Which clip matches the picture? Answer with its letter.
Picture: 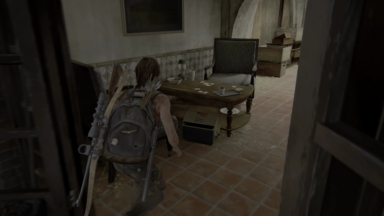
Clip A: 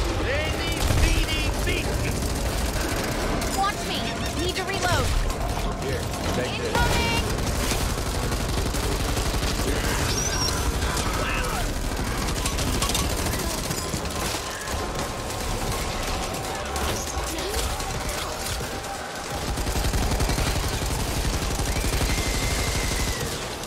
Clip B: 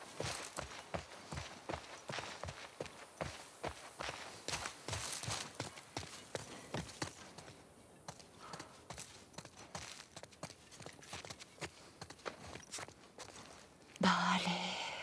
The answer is B